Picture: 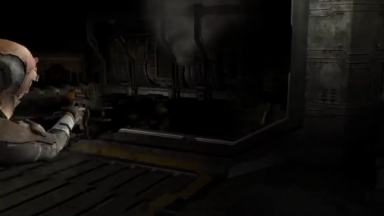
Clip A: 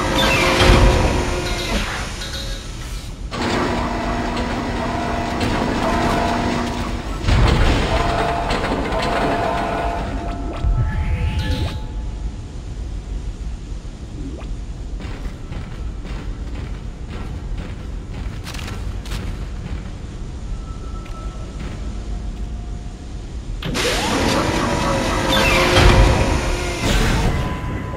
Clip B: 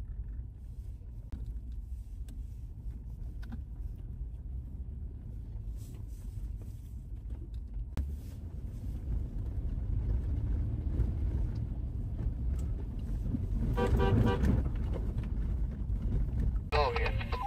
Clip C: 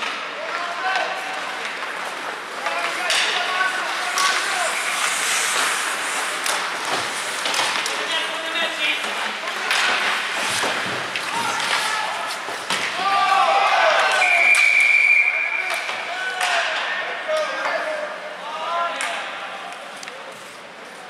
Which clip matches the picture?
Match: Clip A